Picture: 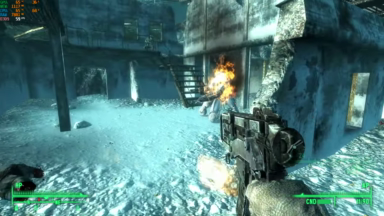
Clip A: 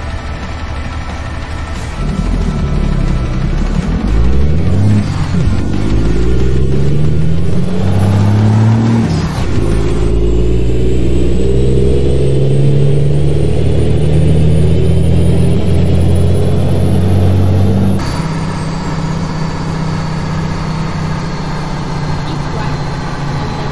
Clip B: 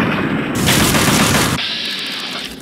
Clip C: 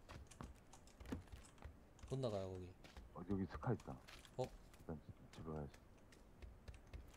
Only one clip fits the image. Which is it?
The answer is B